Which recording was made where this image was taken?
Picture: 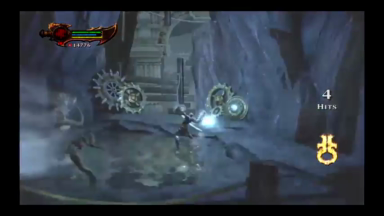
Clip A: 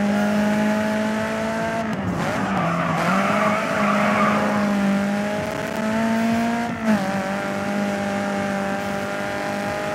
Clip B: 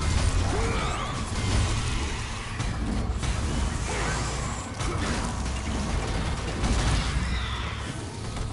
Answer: B